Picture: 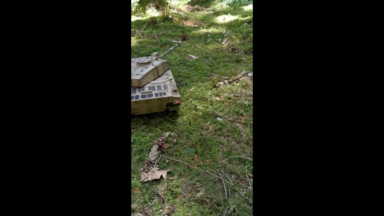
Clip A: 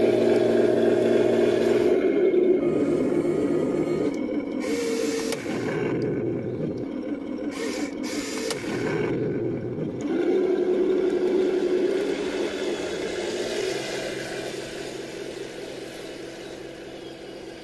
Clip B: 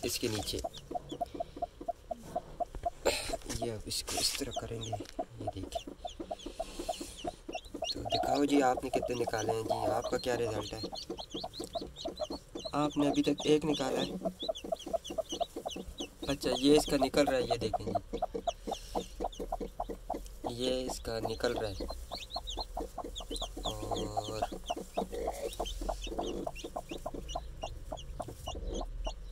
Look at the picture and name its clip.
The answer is A